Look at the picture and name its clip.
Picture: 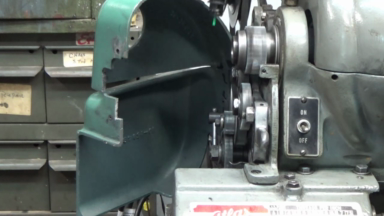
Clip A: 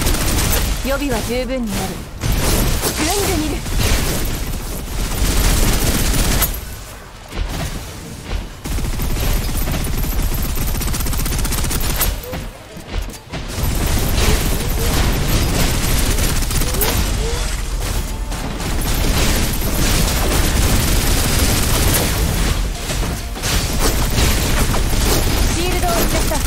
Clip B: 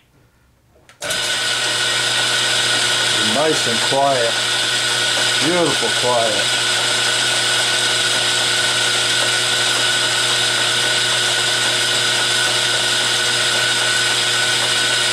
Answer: B